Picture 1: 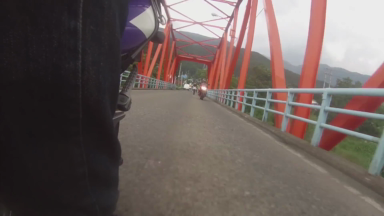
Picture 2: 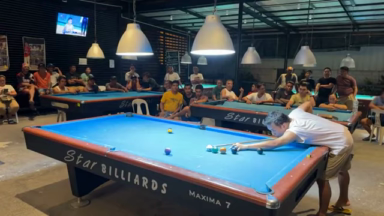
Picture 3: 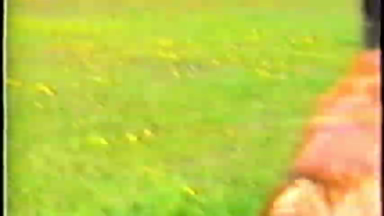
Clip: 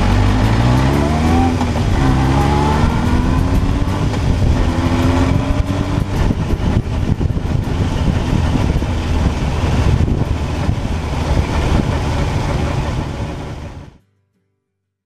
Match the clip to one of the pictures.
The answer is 1